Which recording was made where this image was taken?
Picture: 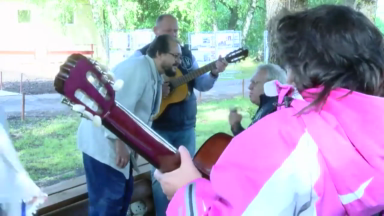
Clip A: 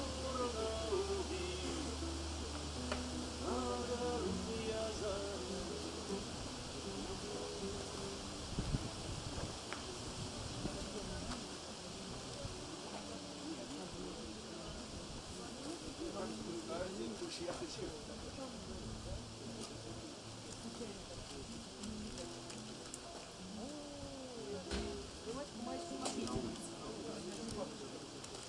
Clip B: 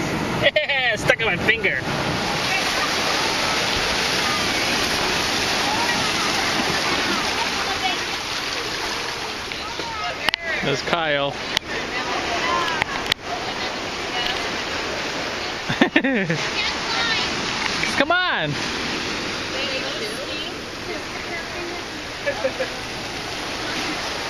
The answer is A